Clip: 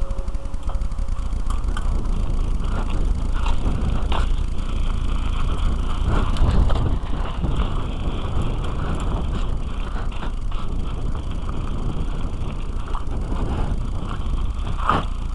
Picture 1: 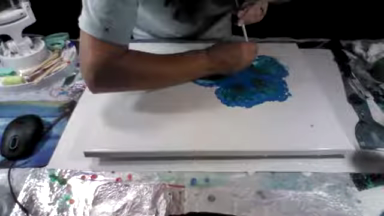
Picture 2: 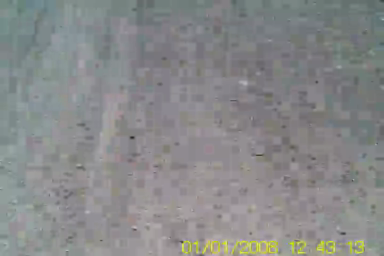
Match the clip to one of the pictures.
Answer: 2